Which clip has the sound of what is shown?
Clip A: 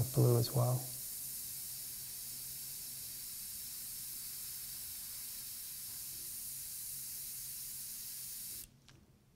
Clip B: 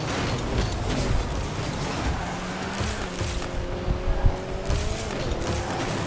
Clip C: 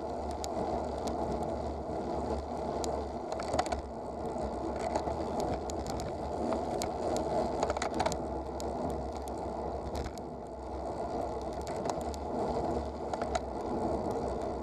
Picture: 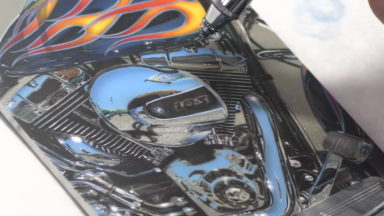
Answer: A